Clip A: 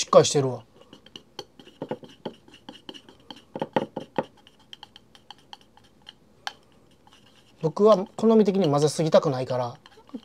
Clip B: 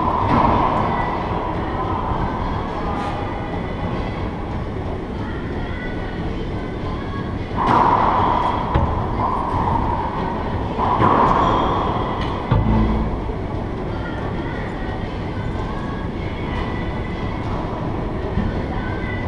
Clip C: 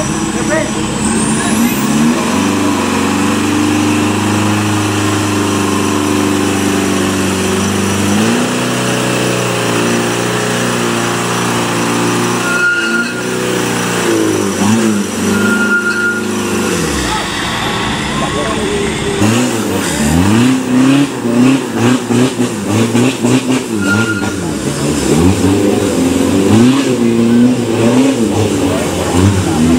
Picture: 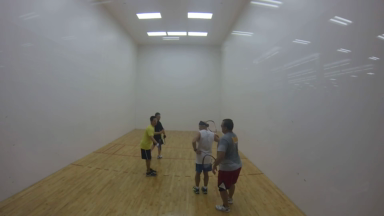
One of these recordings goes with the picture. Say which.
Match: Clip B